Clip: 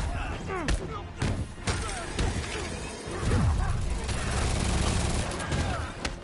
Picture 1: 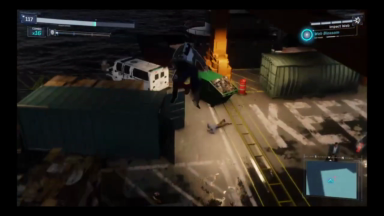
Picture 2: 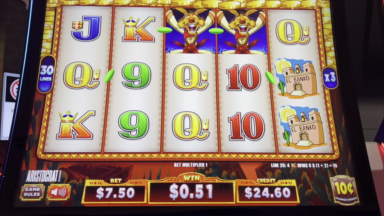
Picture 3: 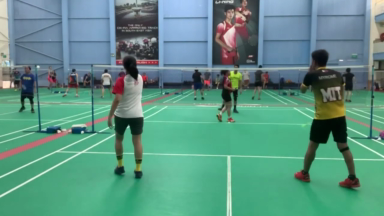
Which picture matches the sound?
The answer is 1